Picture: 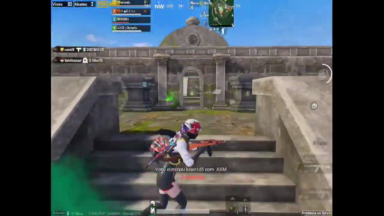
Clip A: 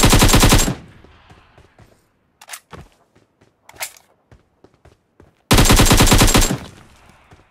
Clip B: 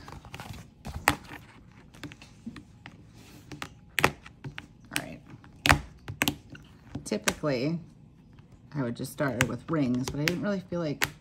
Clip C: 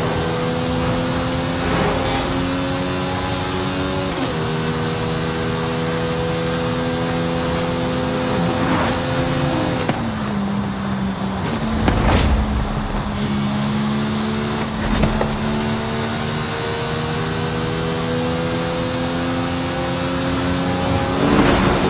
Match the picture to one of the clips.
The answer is A